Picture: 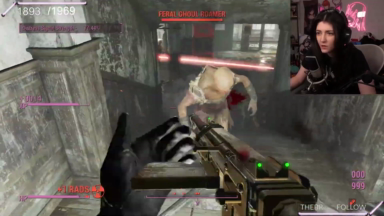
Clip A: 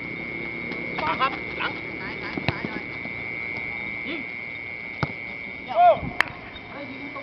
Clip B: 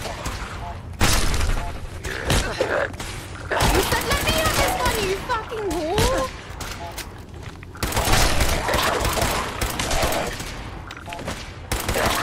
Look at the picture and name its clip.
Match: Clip B